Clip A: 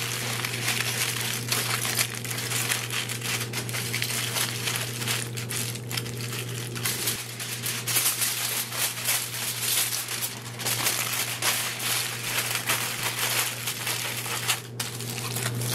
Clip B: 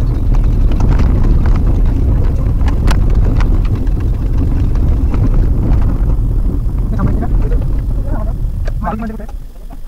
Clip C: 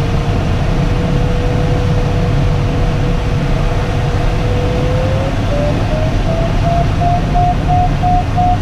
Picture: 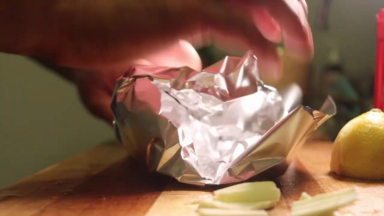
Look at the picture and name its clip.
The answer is A